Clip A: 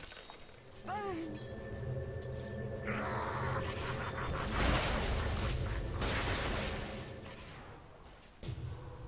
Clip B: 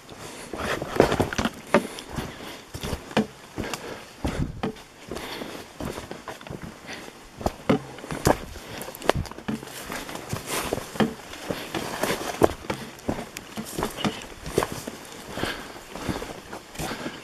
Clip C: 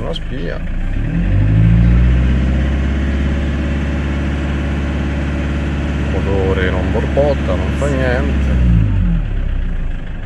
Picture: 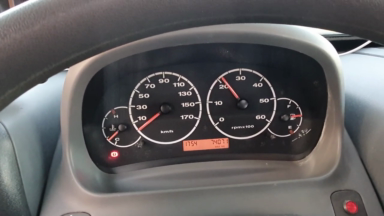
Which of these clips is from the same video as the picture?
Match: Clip C